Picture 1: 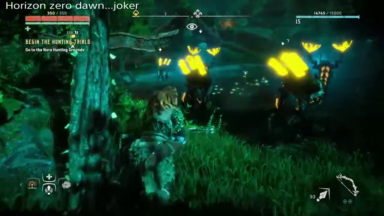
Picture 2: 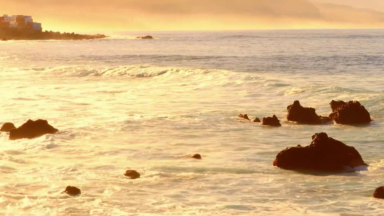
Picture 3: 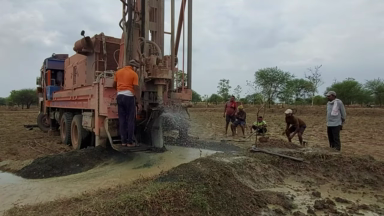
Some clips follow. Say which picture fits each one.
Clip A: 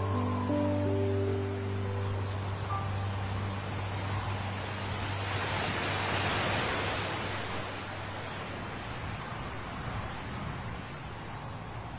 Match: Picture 2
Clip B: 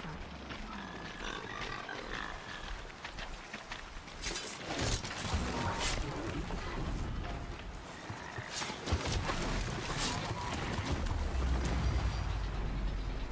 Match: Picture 1